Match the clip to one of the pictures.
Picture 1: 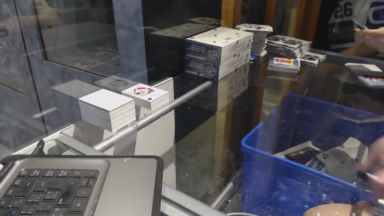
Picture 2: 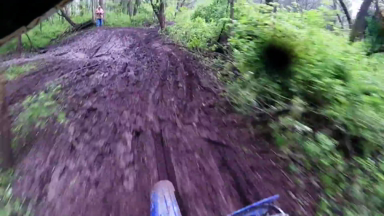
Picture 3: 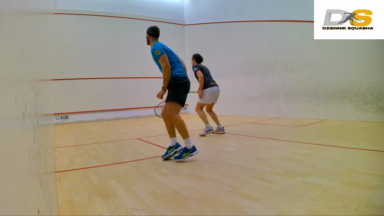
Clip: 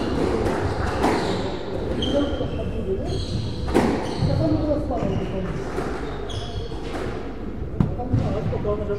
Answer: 3